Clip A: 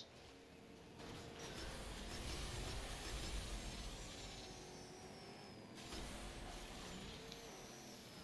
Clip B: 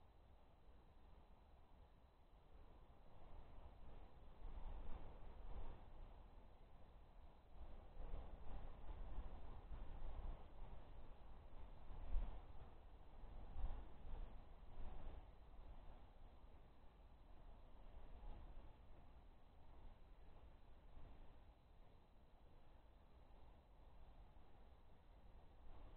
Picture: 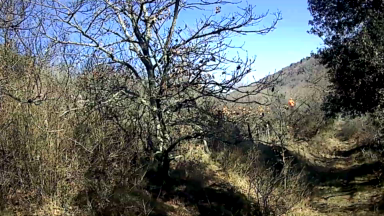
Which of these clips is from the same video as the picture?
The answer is B